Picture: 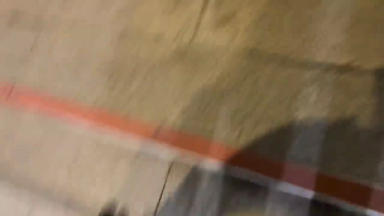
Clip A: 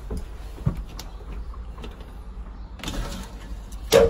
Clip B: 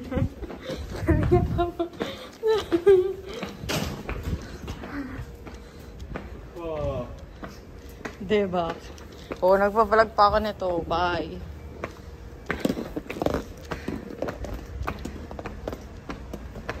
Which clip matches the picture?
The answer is B